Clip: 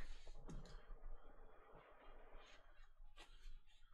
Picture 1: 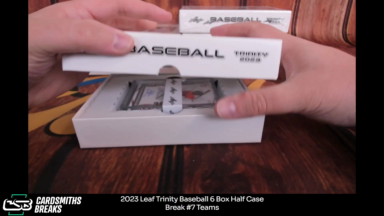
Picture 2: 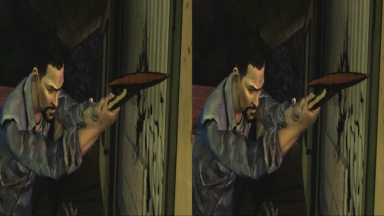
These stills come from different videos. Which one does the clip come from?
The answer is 1